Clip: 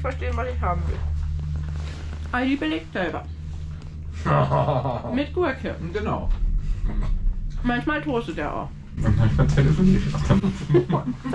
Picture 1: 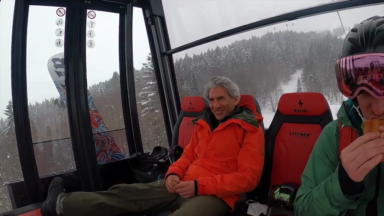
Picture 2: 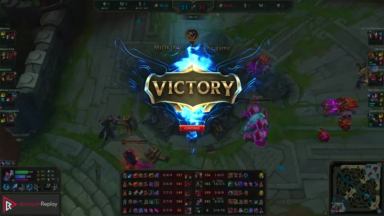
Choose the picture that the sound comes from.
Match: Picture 1